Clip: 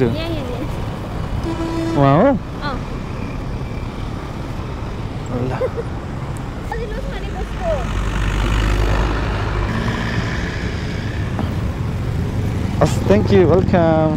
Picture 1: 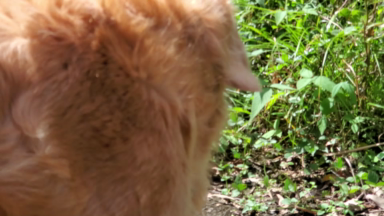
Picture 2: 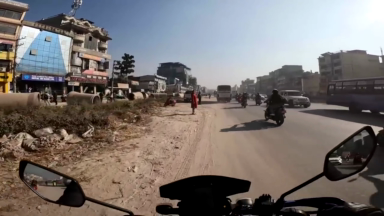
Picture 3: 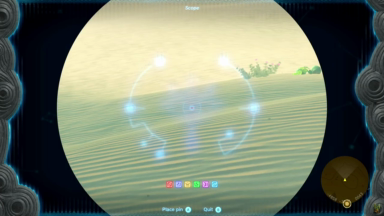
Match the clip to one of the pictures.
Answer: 2